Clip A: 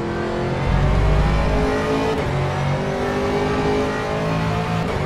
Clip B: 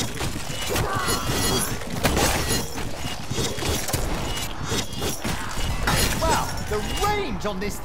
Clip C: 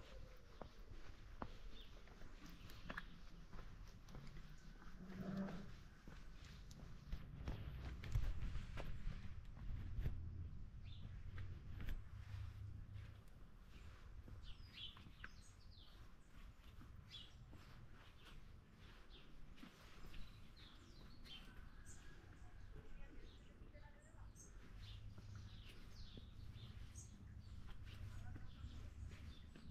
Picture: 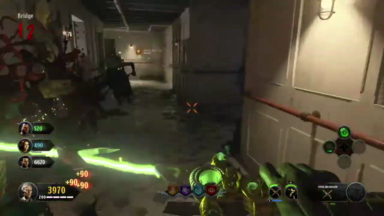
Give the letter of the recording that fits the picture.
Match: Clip B